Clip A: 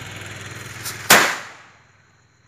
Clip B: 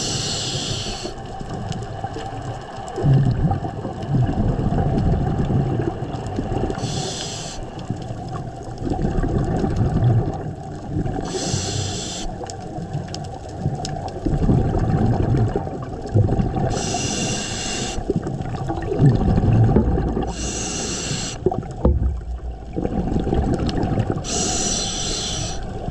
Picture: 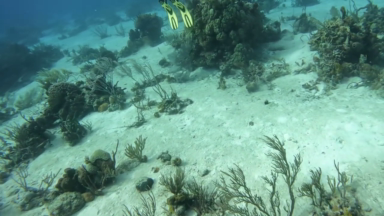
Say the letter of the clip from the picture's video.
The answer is B